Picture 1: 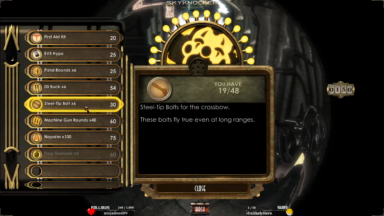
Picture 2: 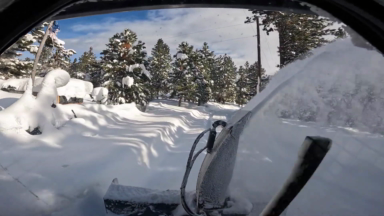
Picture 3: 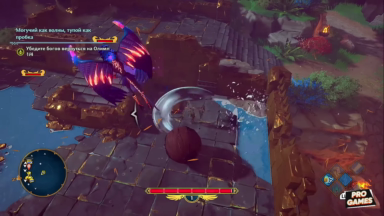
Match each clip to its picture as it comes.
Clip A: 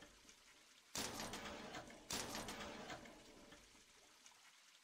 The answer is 1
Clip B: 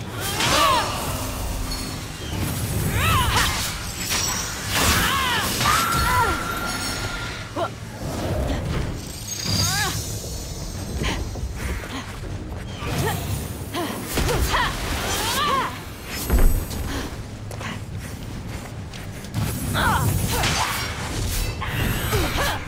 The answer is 3